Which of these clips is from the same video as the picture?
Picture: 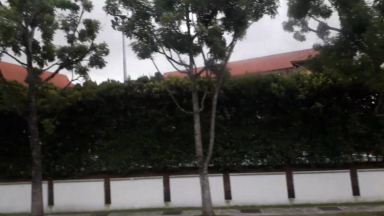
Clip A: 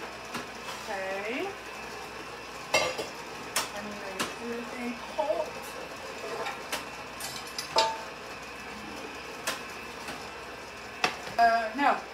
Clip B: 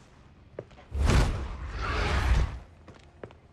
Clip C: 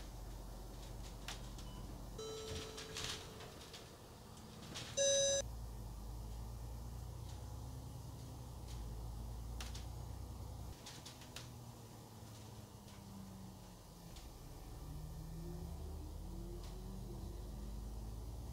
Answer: C